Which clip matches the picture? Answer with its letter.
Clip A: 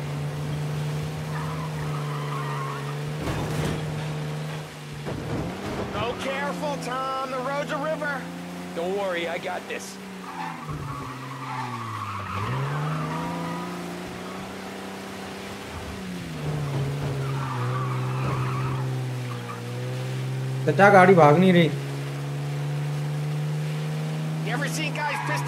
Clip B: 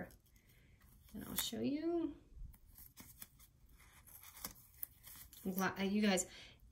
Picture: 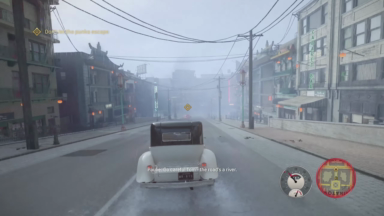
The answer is A